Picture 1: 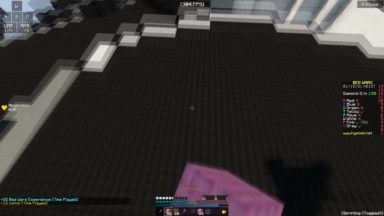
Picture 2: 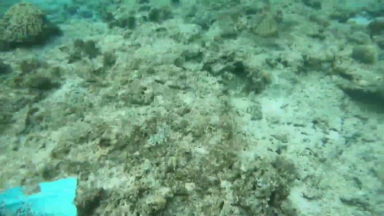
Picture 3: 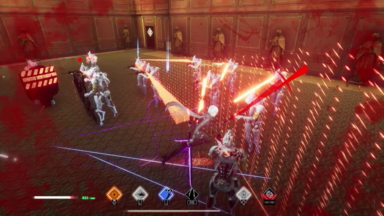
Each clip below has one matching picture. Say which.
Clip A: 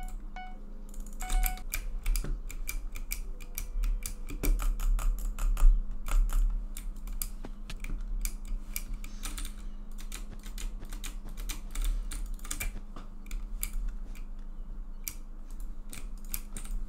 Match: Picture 1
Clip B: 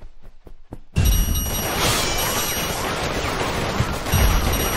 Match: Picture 3